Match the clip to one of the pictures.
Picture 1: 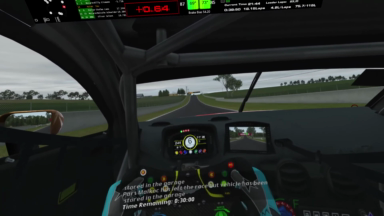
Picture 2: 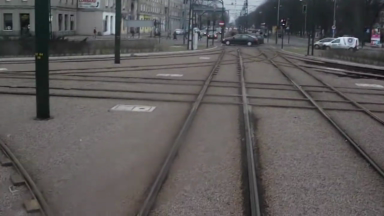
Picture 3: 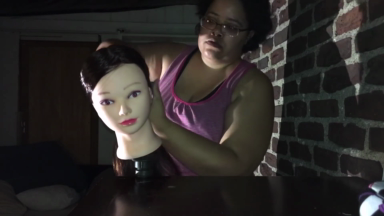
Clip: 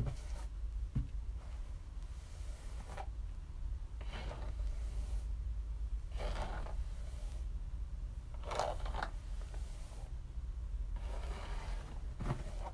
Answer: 3